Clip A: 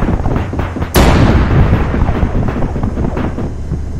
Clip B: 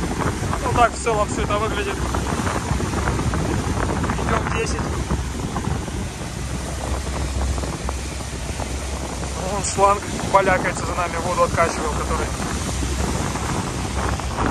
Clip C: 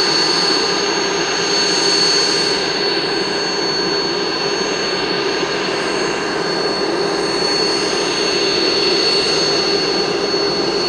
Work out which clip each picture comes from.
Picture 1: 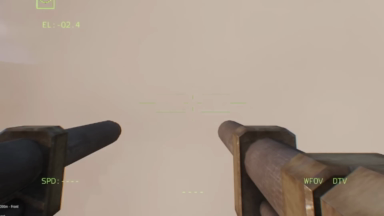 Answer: A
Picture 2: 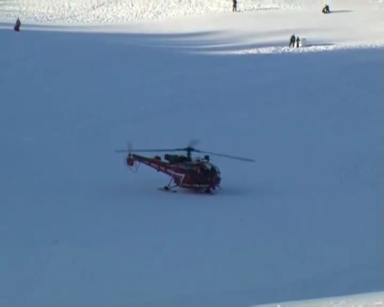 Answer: C